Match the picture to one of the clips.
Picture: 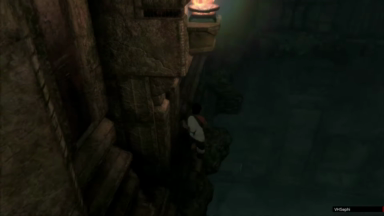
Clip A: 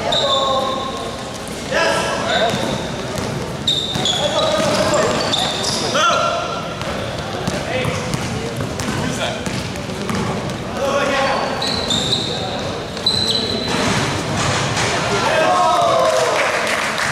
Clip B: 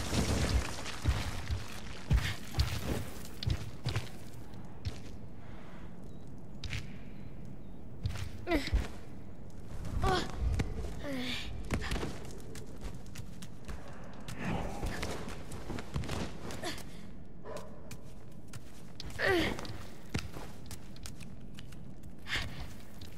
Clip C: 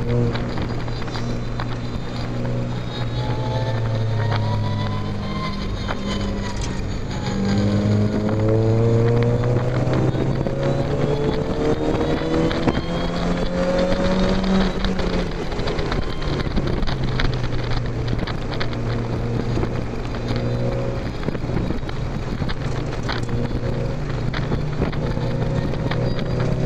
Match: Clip B